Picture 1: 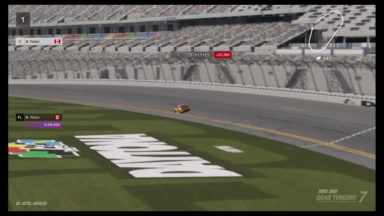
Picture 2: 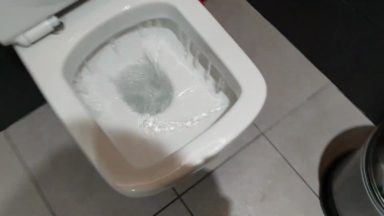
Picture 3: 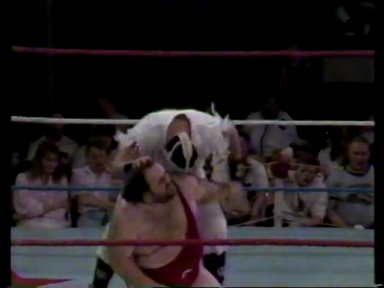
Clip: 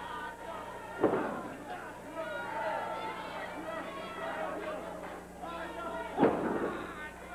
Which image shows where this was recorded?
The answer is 3